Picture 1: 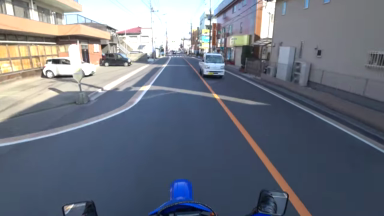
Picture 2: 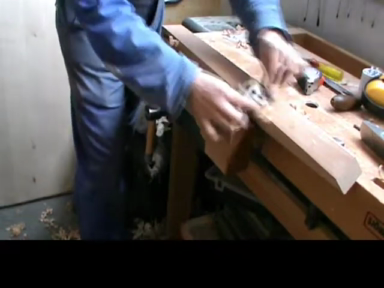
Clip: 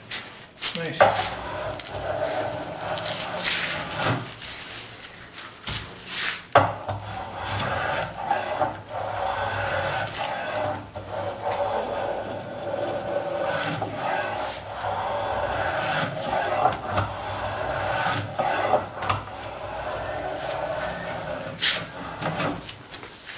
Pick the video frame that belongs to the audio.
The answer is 2